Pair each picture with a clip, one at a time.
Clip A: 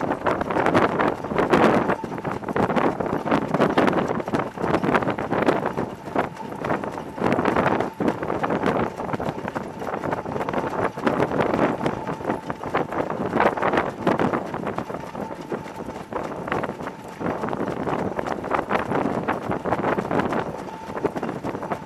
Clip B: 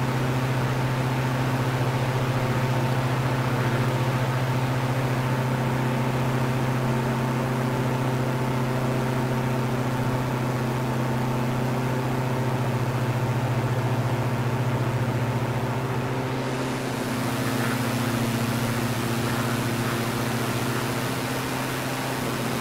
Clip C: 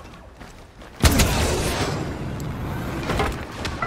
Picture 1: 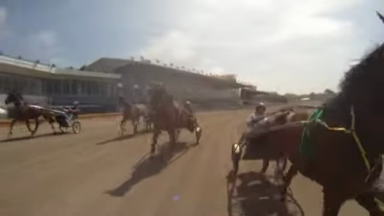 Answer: A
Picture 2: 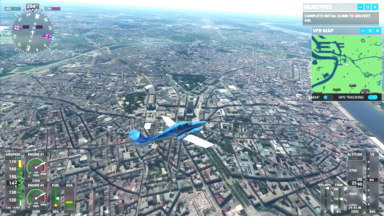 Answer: B